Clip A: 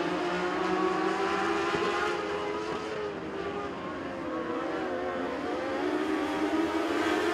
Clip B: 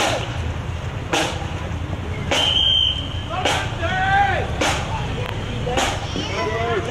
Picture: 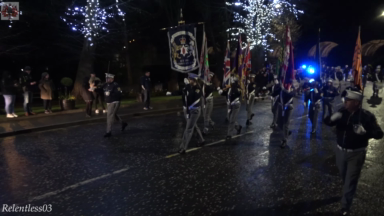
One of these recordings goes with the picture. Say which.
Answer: B